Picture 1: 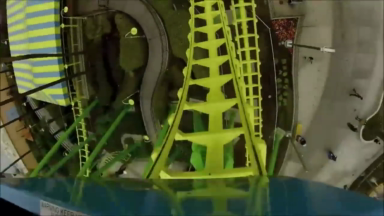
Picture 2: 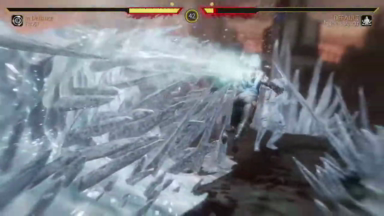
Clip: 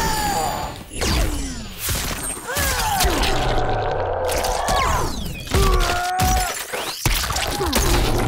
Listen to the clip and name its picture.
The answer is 2